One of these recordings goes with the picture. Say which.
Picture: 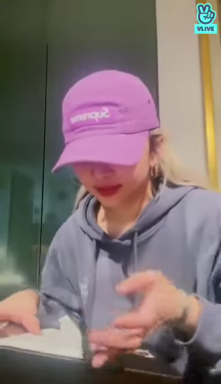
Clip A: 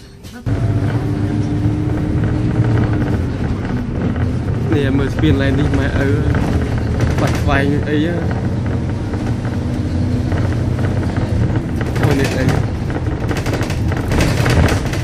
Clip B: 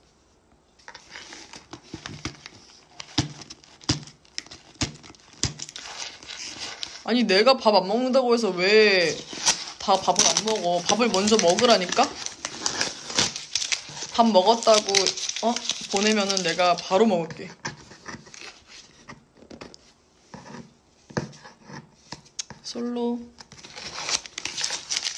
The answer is B